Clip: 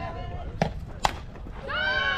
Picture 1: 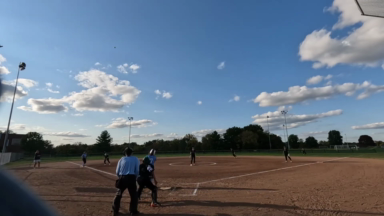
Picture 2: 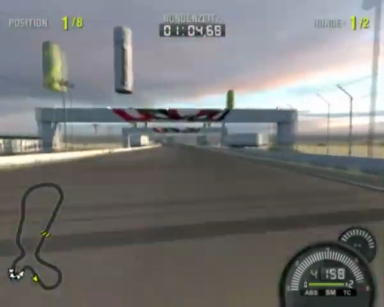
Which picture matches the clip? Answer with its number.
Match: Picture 1